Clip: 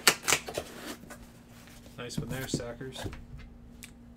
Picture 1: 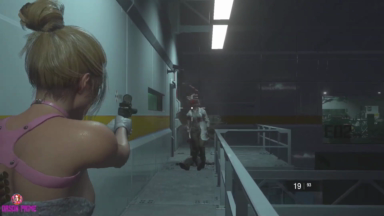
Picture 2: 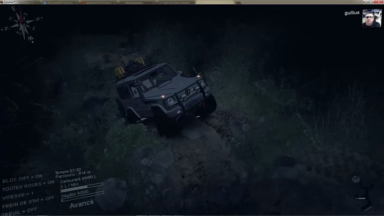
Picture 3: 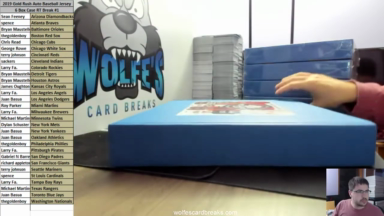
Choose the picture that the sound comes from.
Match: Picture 3